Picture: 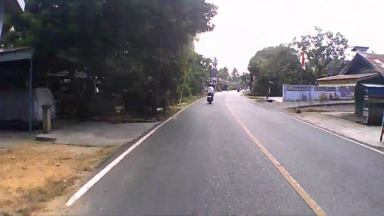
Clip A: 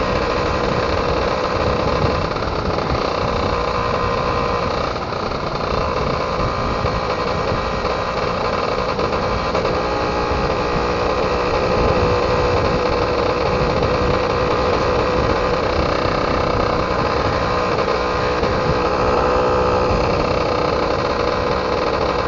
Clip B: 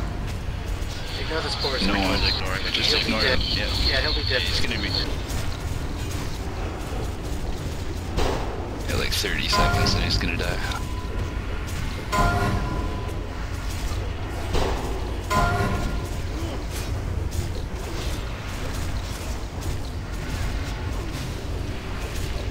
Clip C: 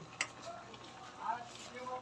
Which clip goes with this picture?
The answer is A